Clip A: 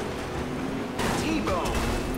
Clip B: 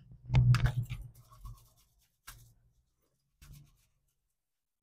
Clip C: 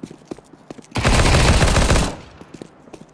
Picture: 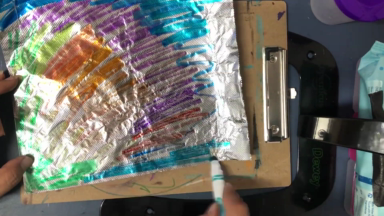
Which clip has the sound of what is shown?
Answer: B